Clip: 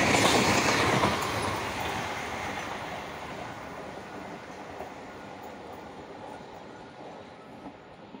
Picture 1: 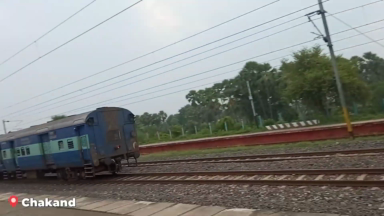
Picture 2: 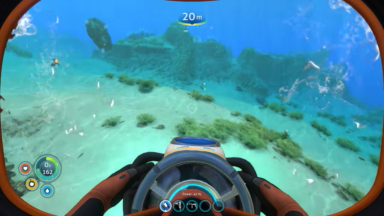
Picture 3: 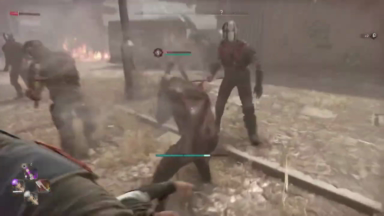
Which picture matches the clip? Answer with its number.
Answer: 1